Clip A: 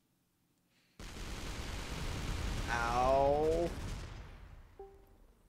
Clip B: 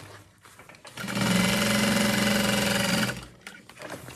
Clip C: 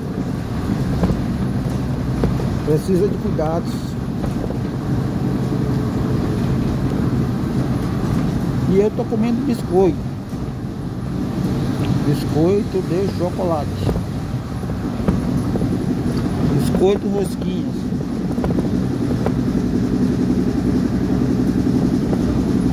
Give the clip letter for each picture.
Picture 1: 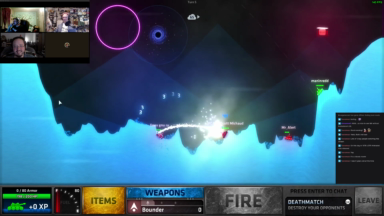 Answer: A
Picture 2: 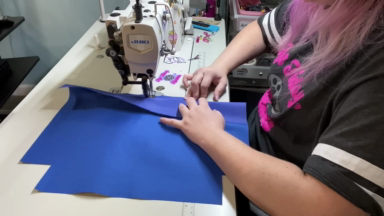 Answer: B